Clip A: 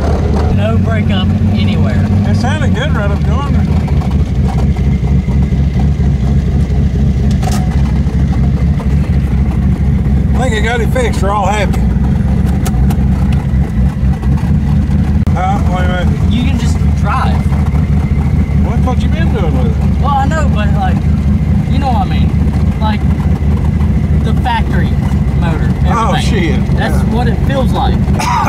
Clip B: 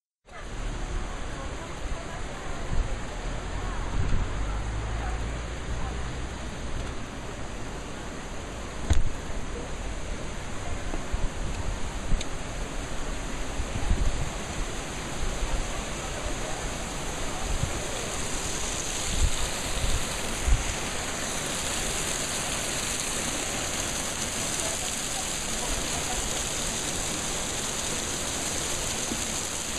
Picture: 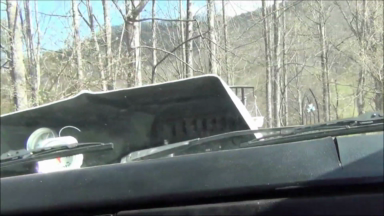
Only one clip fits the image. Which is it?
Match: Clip A